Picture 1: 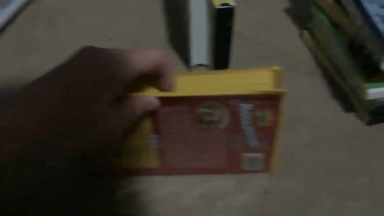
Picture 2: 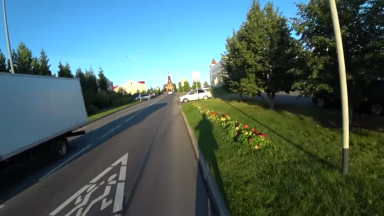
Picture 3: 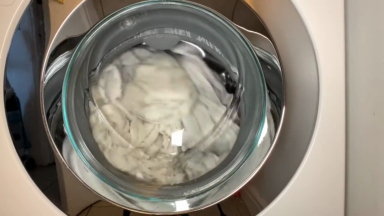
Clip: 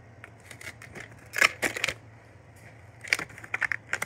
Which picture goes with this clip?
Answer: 1